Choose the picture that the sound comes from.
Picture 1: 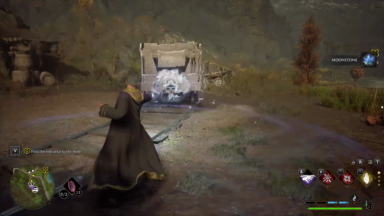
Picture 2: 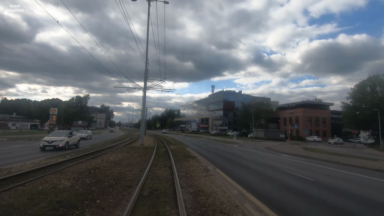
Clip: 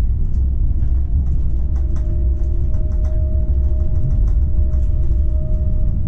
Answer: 2